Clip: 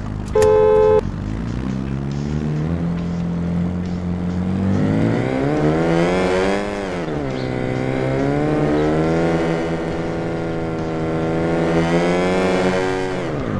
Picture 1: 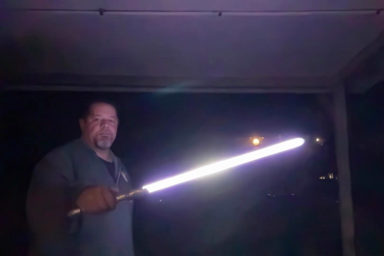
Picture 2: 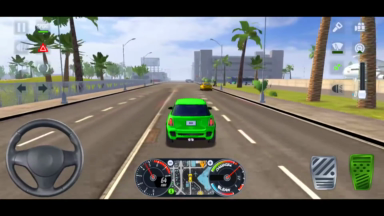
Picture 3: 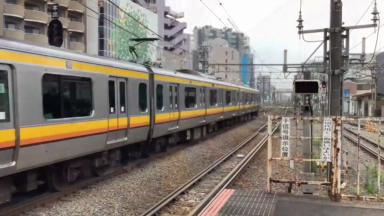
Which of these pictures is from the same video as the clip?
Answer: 2